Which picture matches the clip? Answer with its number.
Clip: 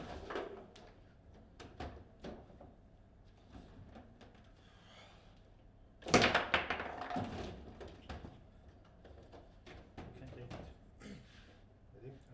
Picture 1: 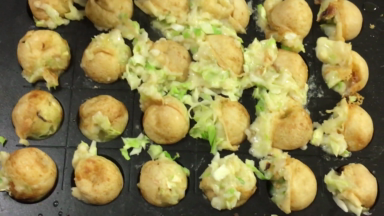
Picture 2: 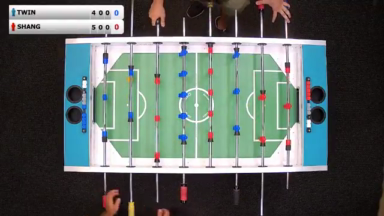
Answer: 2